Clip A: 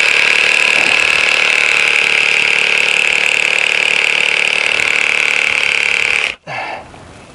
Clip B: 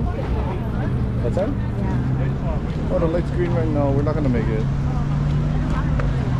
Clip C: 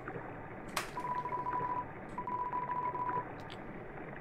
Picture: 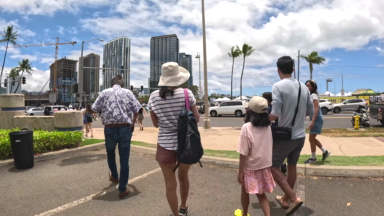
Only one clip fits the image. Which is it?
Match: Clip B